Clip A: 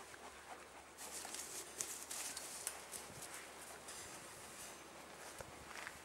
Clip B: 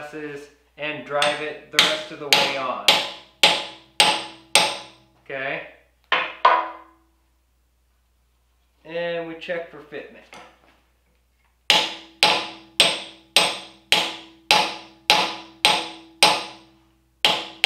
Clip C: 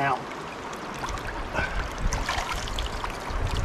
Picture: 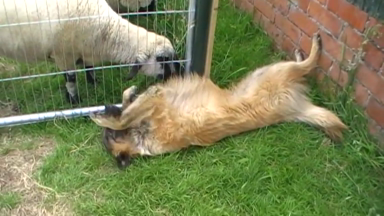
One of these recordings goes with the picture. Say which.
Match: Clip A